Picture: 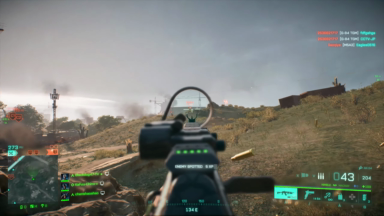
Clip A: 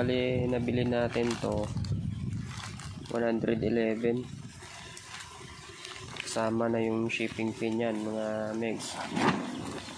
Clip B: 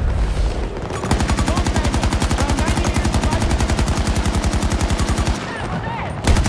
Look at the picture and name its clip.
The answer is B